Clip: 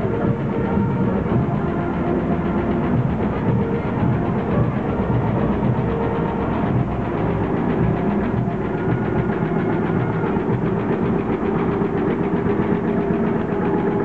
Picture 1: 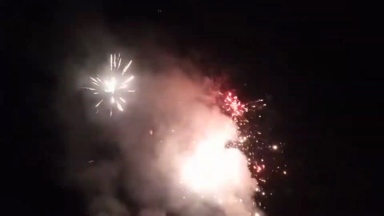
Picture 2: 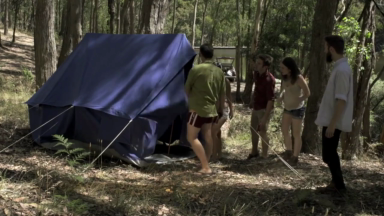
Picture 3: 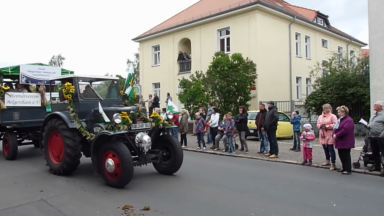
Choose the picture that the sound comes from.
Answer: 3